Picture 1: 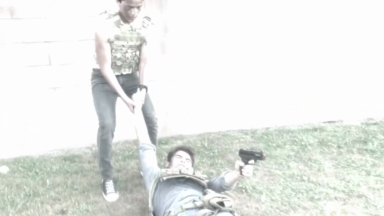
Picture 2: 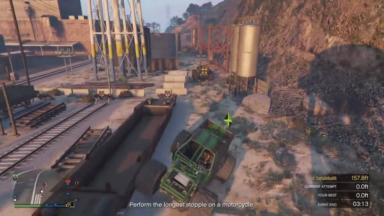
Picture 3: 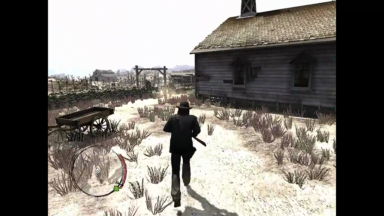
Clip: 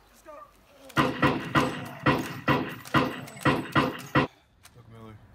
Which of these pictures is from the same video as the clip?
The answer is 1